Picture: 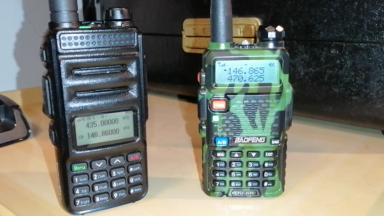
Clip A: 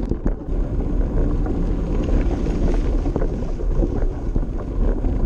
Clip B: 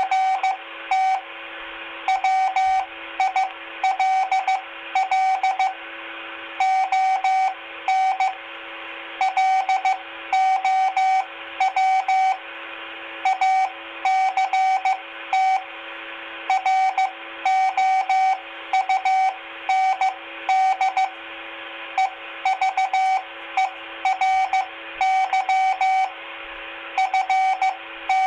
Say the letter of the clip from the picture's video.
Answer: B